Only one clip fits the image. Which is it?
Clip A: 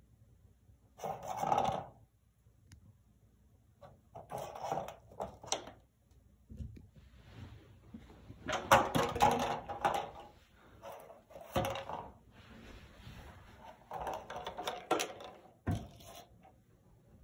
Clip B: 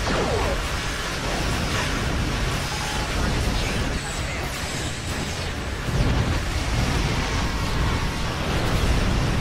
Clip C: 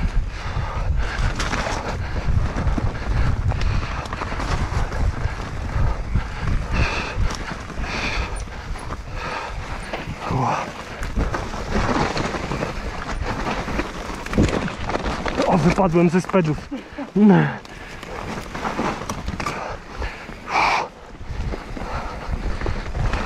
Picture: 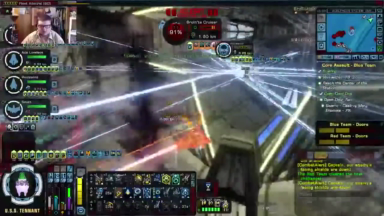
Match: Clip B